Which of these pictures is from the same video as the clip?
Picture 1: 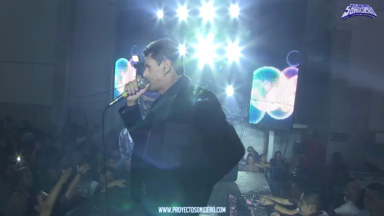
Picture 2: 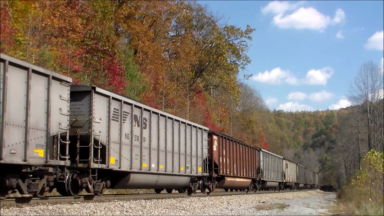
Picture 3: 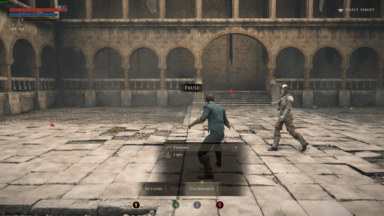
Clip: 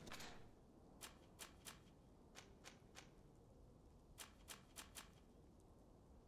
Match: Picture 3